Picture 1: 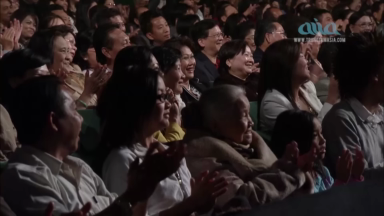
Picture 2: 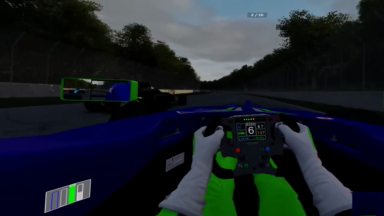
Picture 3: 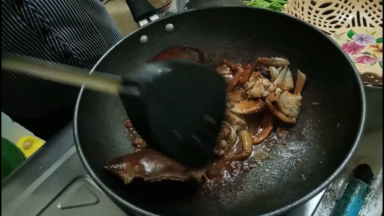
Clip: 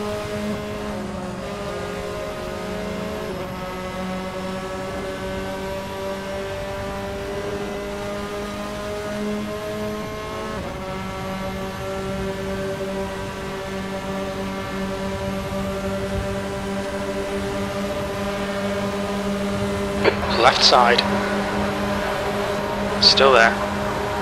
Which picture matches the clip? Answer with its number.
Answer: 2